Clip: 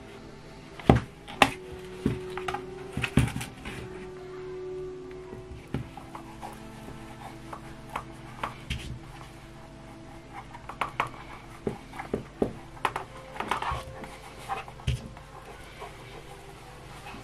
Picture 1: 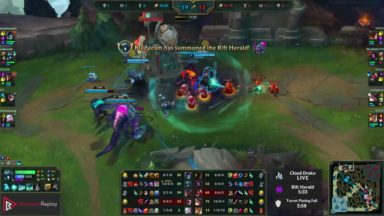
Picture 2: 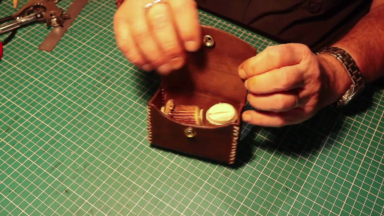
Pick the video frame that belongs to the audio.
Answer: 2